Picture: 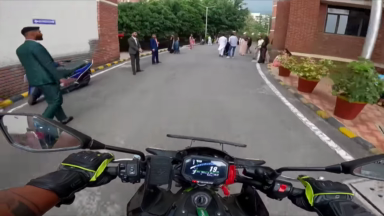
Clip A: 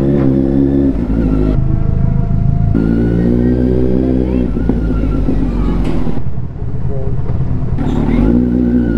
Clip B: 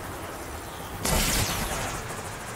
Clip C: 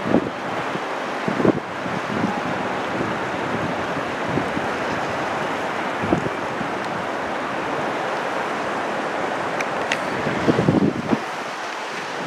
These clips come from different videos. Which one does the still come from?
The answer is A